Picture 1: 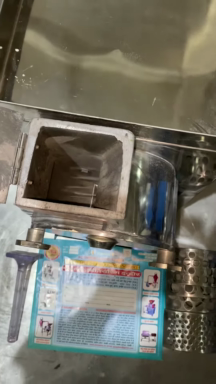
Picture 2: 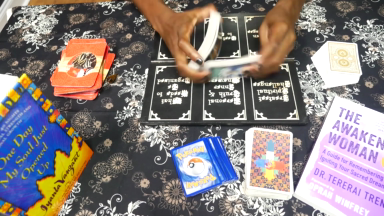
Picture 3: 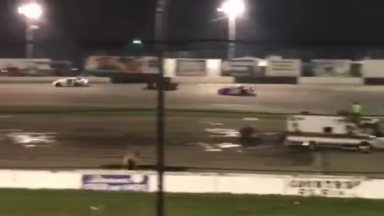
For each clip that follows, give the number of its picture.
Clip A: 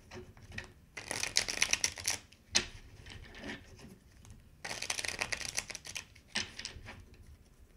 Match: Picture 2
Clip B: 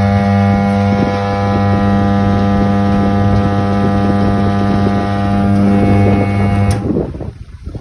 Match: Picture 1